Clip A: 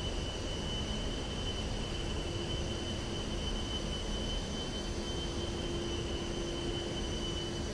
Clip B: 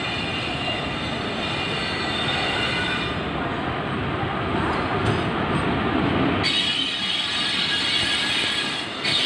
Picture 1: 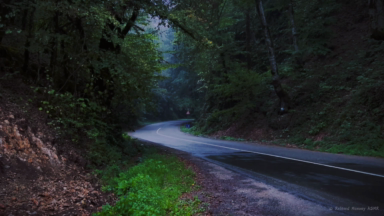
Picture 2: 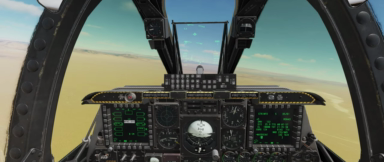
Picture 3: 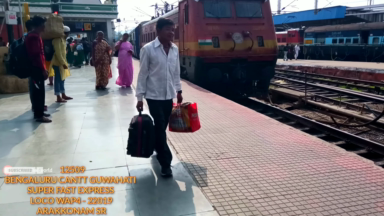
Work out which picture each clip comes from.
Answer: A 2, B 3